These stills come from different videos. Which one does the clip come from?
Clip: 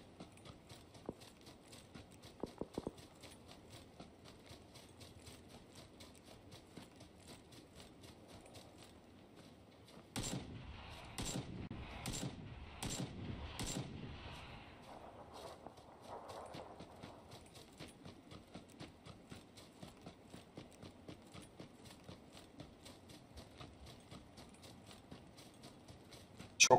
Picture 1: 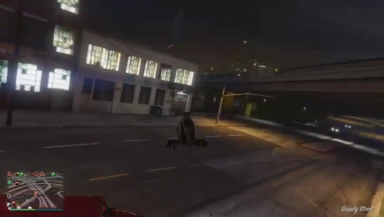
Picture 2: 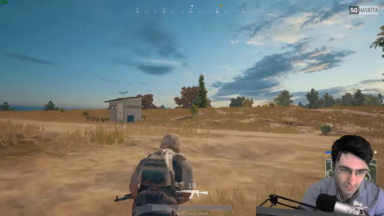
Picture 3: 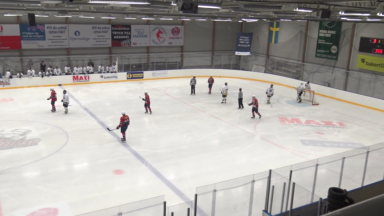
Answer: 2